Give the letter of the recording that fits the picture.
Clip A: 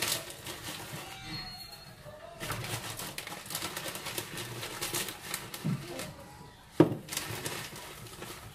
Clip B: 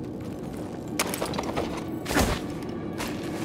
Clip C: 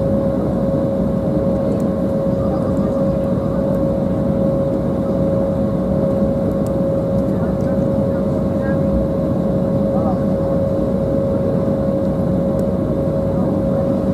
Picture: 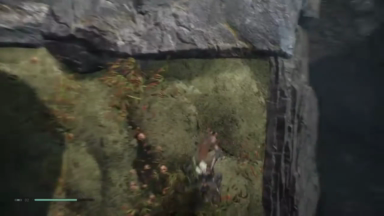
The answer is B